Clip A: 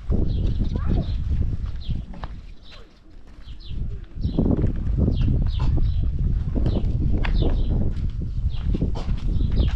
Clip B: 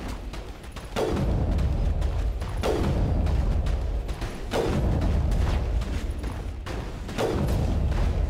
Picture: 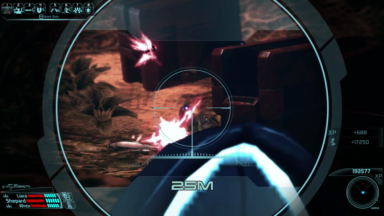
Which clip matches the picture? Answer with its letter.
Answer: B